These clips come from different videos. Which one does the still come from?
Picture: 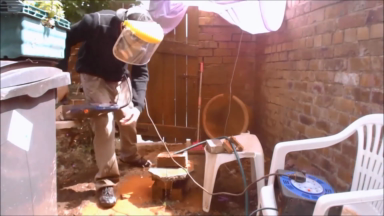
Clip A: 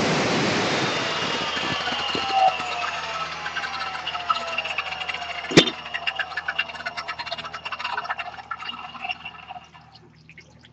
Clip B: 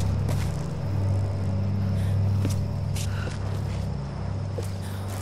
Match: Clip A